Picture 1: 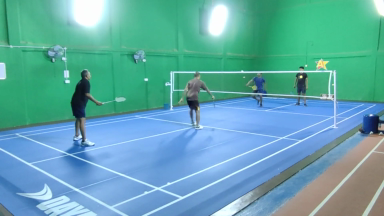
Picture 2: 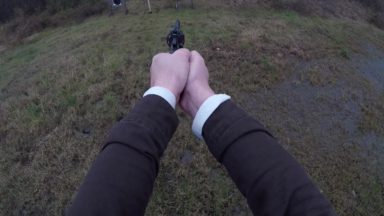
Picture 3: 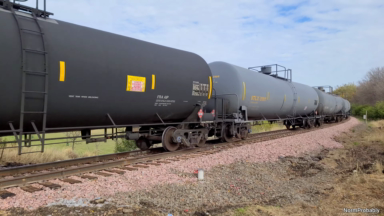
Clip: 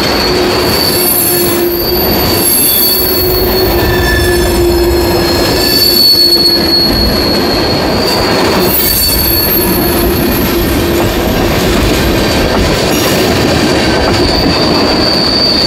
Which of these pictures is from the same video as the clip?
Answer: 3